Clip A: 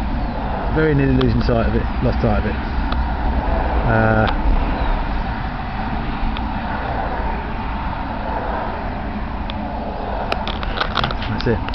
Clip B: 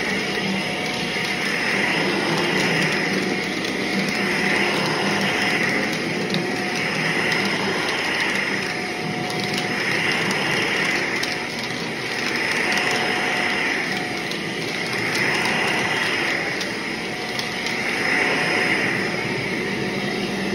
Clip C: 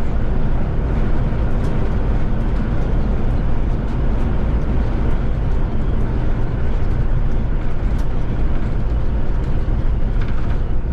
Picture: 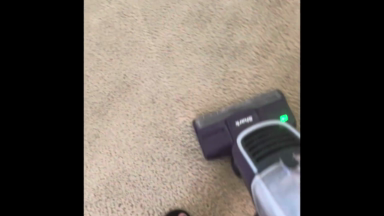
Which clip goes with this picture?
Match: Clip B